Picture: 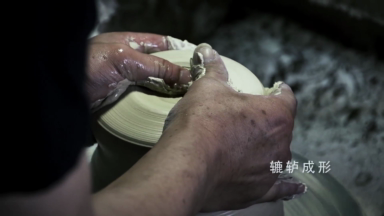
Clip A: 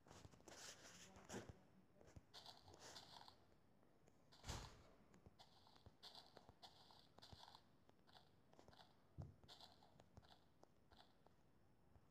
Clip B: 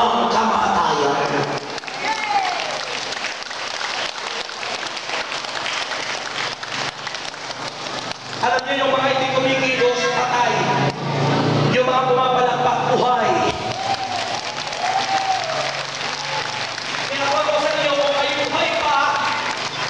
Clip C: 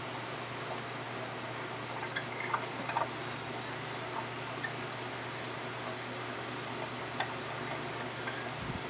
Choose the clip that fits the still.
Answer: C